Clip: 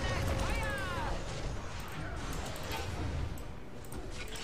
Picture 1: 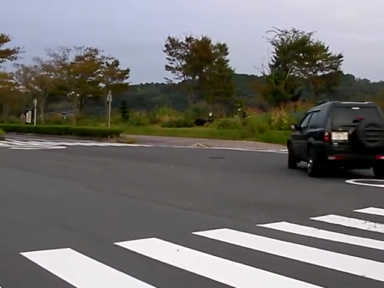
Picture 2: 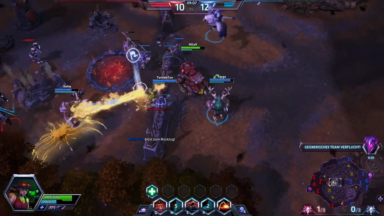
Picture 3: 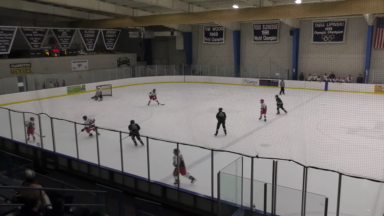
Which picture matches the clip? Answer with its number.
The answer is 2